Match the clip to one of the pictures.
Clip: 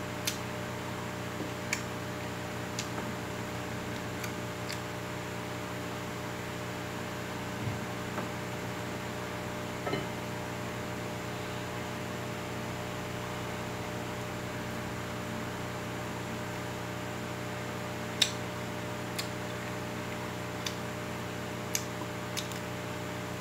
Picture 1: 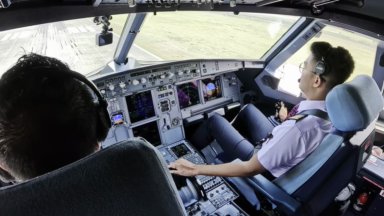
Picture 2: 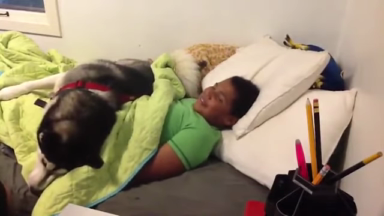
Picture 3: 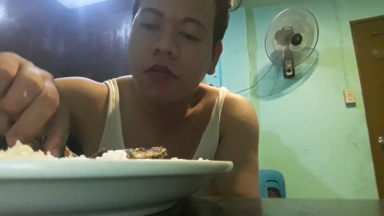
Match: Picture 3